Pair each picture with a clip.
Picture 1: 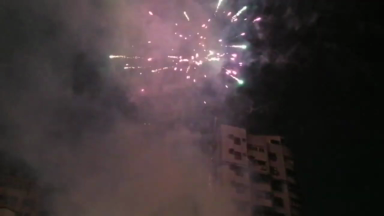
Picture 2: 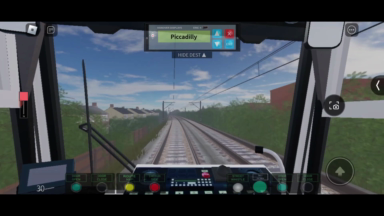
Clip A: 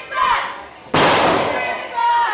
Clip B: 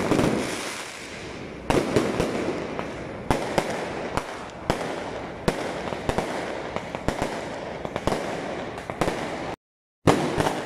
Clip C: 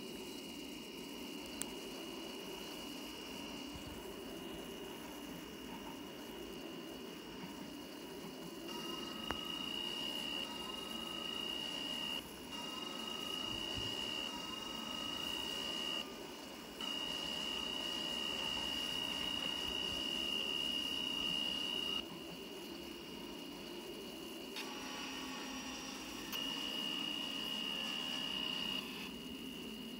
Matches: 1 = B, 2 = C